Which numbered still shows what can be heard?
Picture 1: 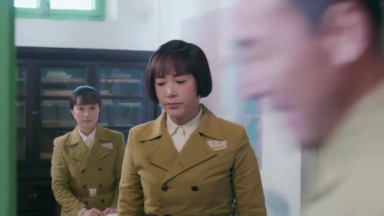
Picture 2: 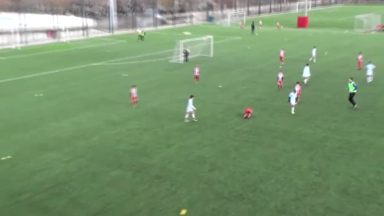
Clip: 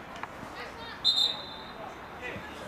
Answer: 2